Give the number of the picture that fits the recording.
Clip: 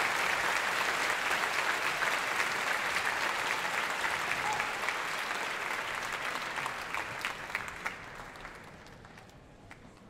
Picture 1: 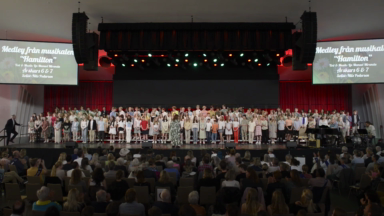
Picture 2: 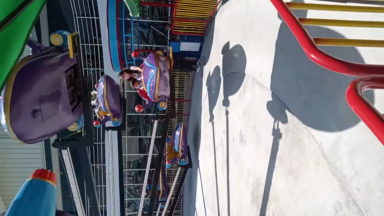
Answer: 1